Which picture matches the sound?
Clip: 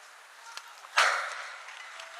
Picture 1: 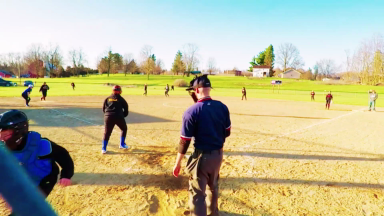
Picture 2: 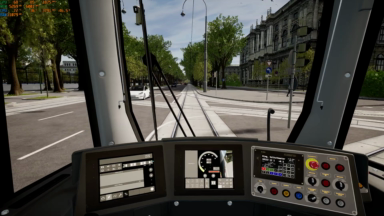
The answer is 1